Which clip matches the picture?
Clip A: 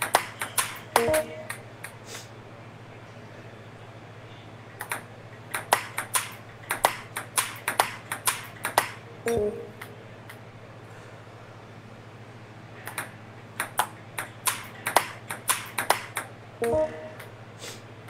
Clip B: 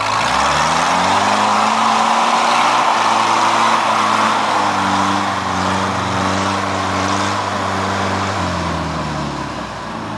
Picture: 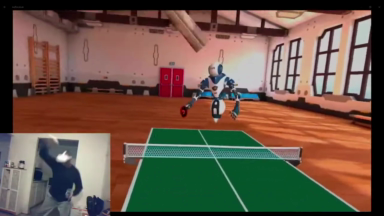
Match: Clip A